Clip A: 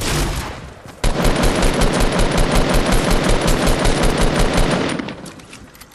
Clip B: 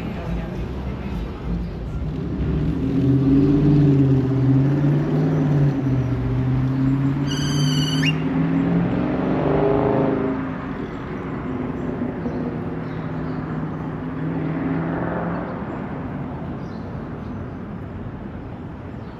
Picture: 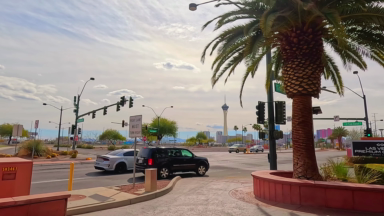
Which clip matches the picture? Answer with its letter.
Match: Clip B